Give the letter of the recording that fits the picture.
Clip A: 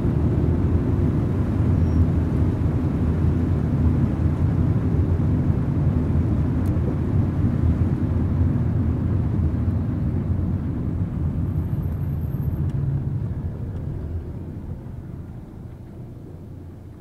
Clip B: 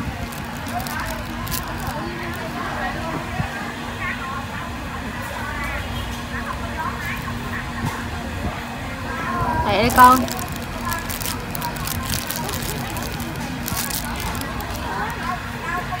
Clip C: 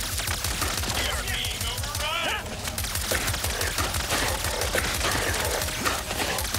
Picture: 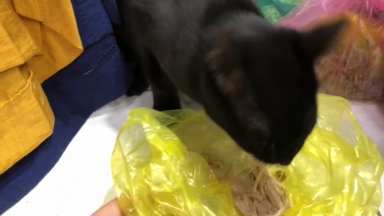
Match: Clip B